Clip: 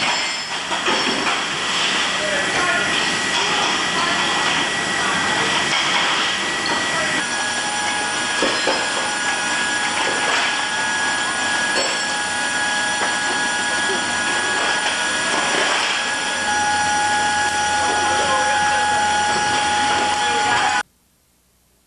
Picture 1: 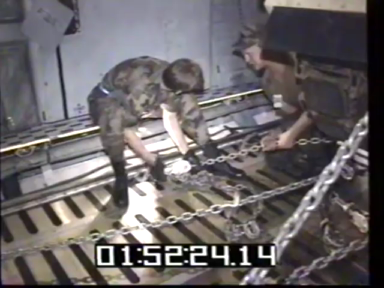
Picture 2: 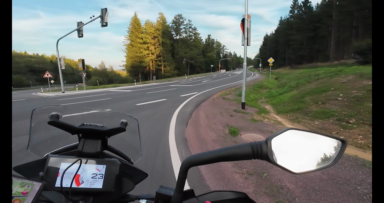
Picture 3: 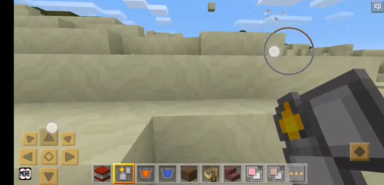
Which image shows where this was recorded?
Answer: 1